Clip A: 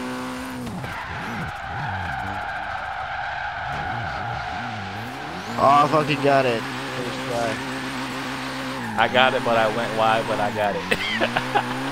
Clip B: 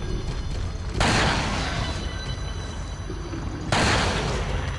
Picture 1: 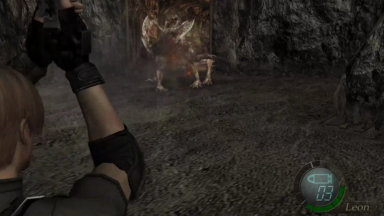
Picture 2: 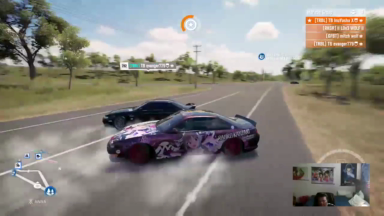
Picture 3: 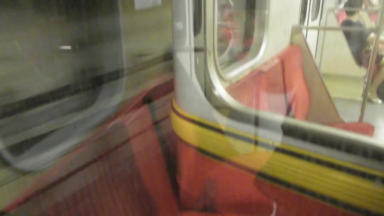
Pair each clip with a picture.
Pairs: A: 2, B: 1